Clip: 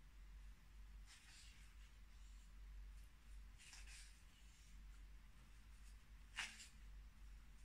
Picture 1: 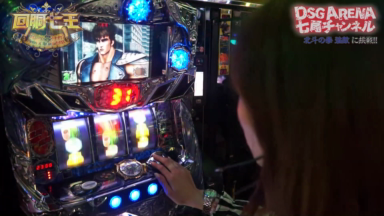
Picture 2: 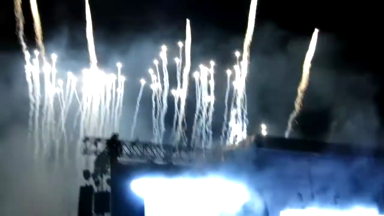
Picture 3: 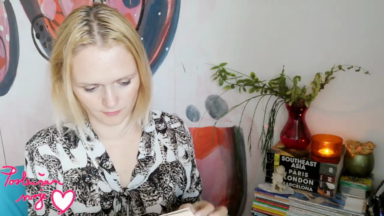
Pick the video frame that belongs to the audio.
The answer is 3